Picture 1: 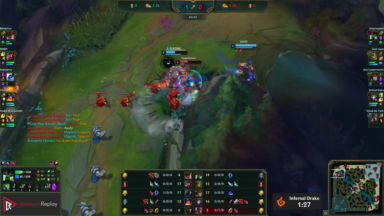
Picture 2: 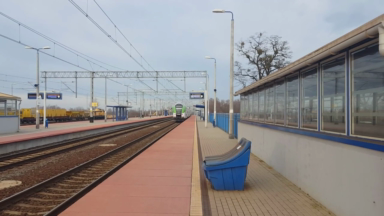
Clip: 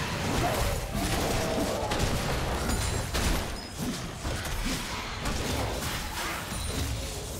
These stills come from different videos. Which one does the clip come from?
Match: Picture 1